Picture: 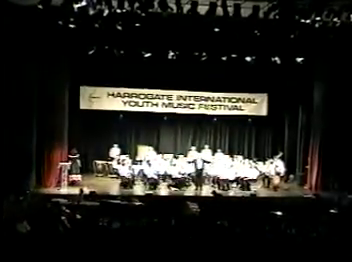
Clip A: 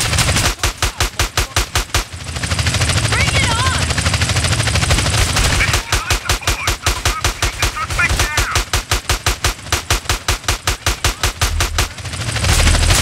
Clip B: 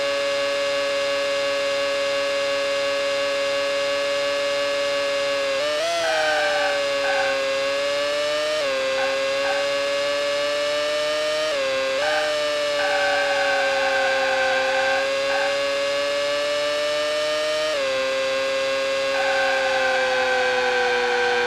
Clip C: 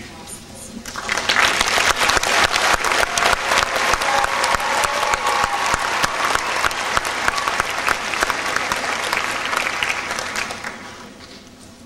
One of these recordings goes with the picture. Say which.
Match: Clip C